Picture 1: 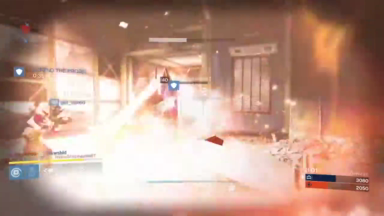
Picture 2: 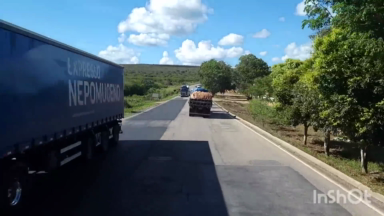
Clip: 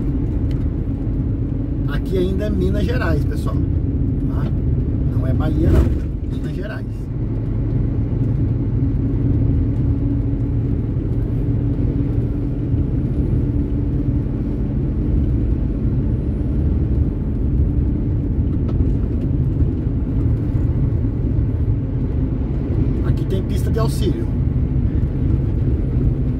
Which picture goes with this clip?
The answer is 2